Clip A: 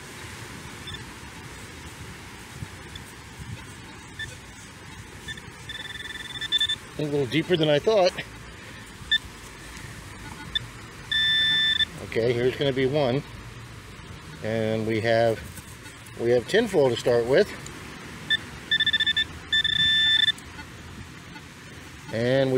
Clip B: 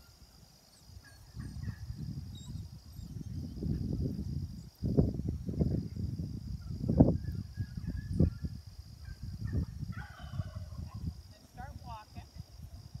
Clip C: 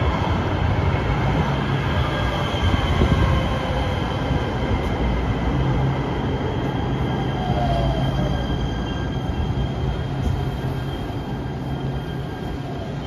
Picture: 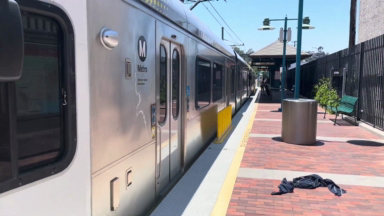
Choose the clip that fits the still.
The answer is C